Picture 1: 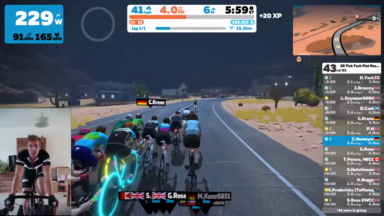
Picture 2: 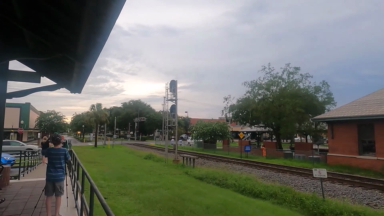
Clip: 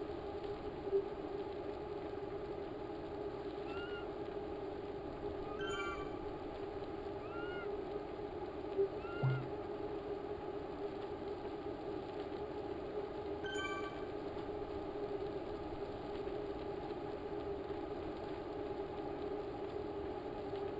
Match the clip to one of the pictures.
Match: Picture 1